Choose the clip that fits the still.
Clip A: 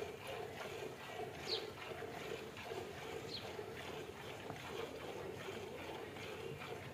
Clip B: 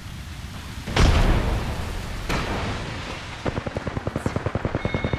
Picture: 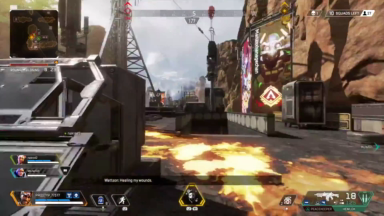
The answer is B